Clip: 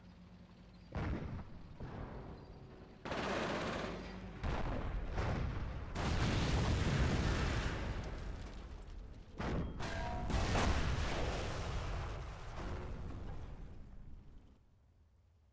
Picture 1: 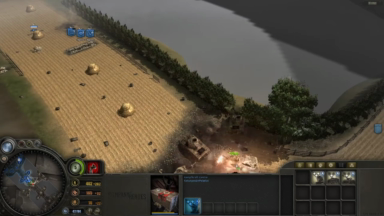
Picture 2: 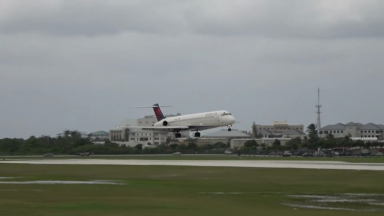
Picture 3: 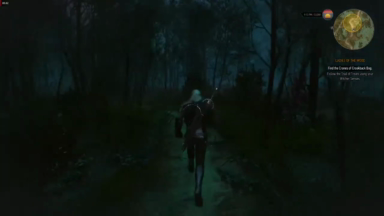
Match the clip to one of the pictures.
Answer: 1